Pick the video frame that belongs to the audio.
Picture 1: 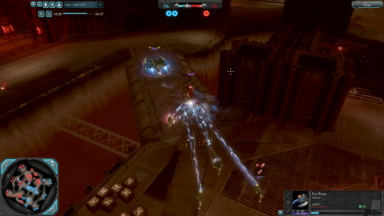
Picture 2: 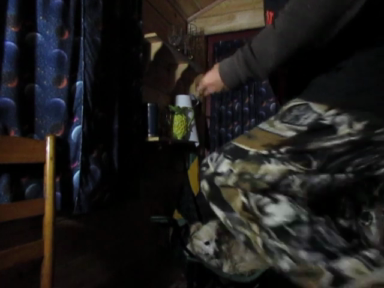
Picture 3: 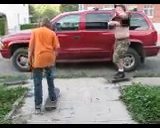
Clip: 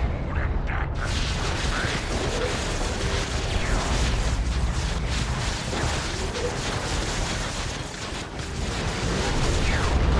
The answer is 1